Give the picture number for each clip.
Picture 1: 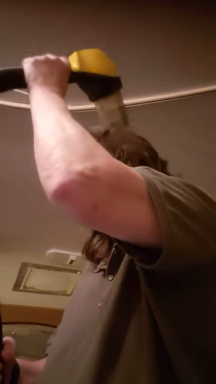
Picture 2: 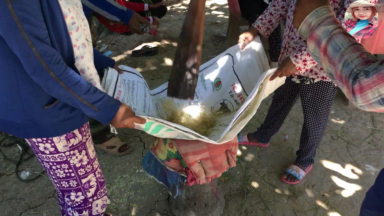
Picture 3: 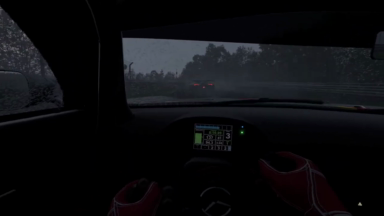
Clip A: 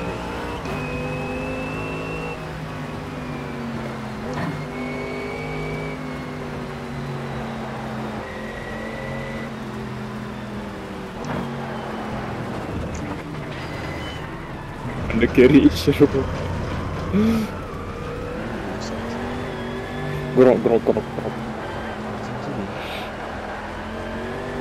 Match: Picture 3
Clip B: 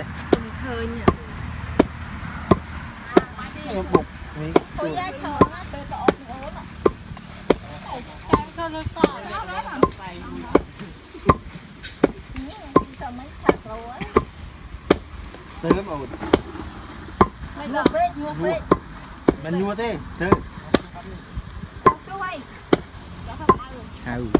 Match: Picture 2